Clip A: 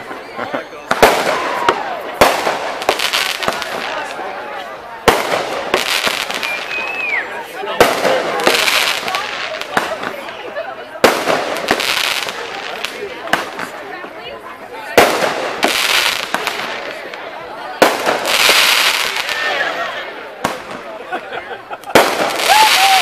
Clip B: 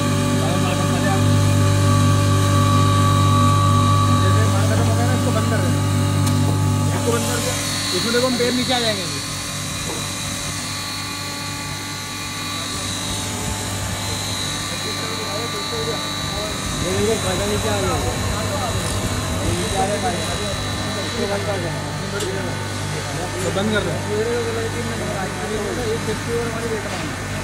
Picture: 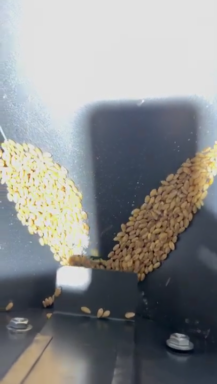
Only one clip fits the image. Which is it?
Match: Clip B